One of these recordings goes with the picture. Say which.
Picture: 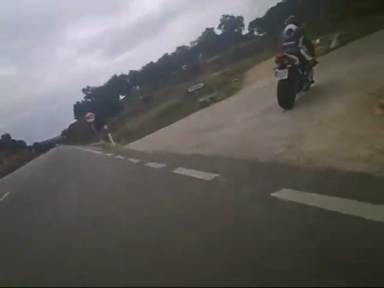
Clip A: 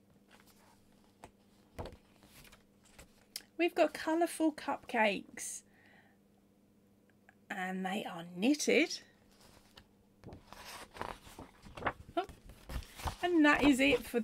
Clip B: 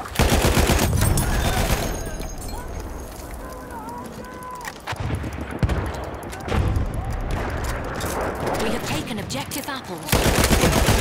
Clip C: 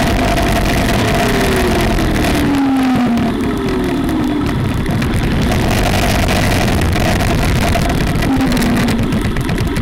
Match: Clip C